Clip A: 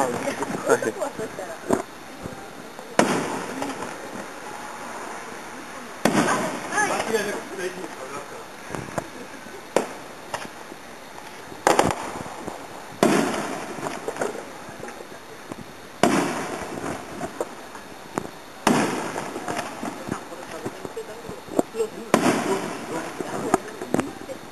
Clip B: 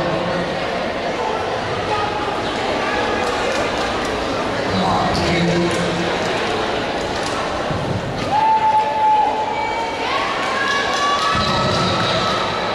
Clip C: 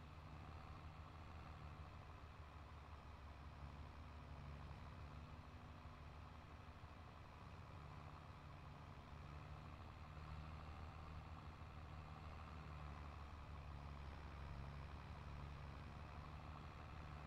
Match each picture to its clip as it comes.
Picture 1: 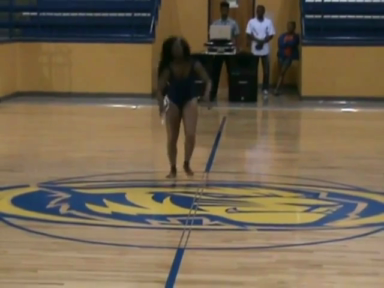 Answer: B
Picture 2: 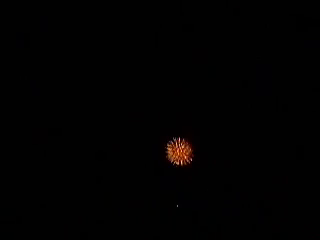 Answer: A